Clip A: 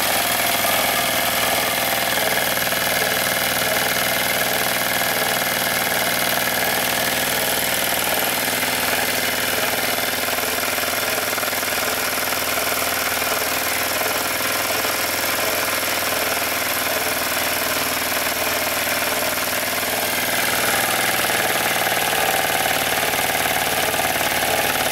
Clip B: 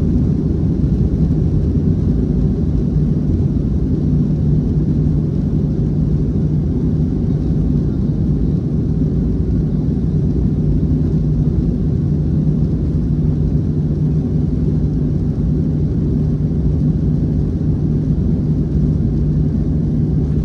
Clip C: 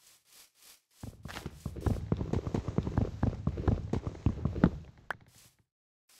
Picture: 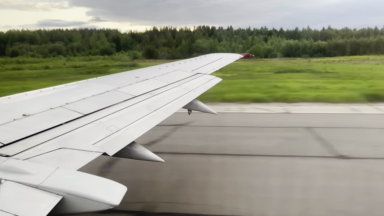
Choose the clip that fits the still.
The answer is B